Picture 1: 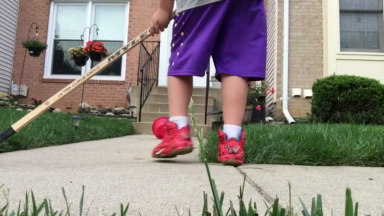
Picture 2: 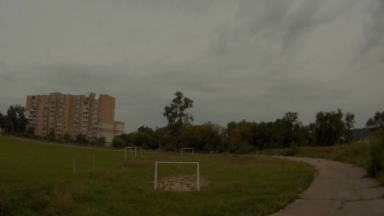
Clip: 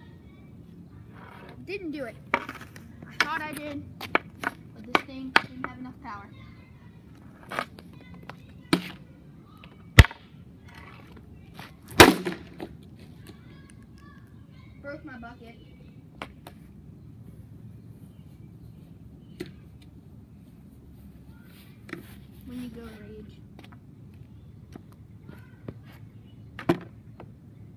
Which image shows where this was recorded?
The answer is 1